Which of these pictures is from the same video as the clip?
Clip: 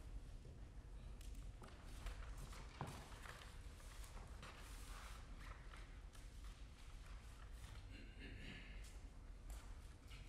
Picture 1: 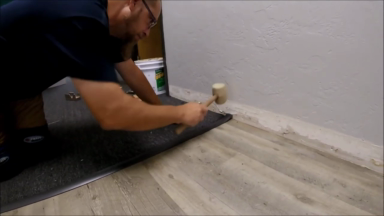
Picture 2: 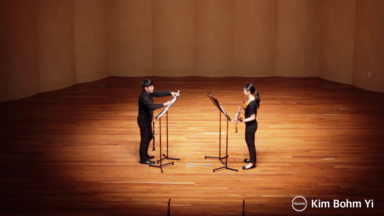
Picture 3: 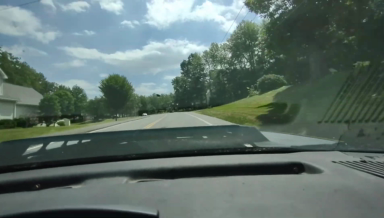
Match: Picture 2